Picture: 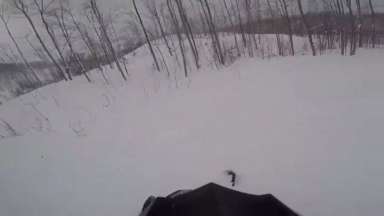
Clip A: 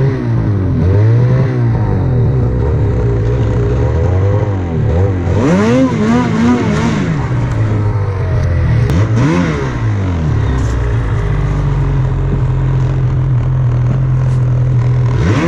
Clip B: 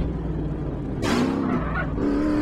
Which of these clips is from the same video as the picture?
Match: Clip A